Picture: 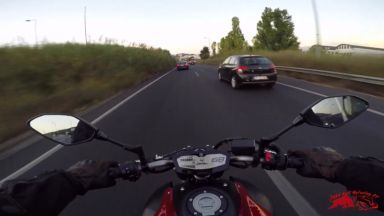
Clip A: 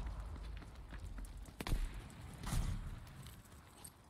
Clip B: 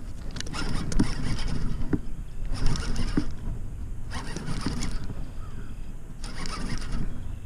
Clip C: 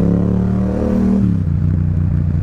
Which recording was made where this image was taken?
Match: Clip C